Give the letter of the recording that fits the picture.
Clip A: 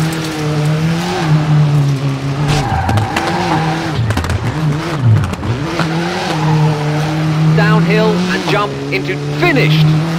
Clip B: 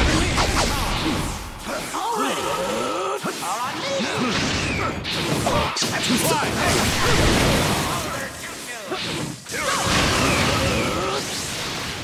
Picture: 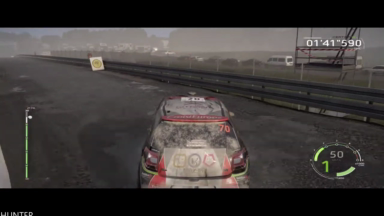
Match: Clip A